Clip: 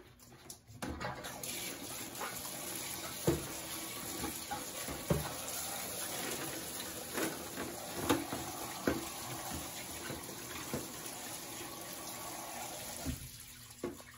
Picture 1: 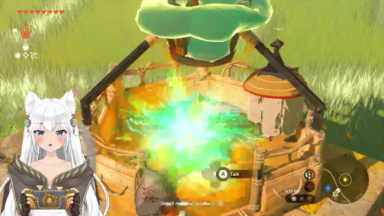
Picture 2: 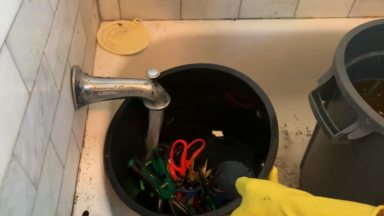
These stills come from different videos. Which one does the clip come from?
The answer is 2